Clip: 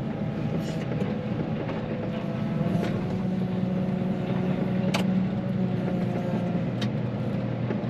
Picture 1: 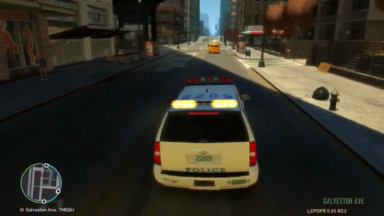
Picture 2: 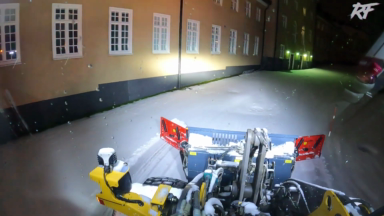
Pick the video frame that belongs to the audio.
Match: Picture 2